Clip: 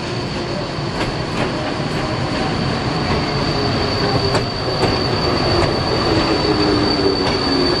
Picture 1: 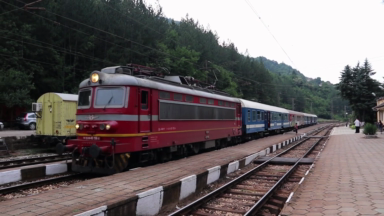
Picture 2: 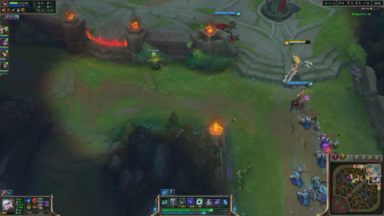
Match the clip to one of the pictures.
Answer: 1